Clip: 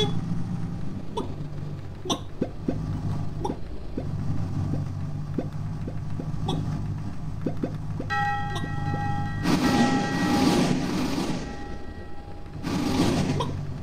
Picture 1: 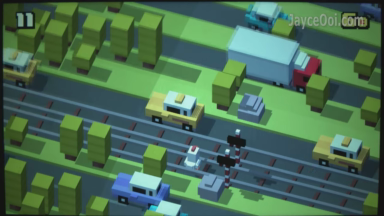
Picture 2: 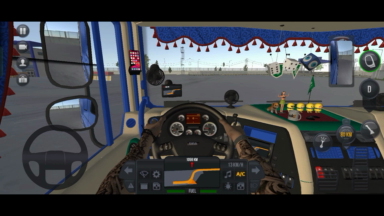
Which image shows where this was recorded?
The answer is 1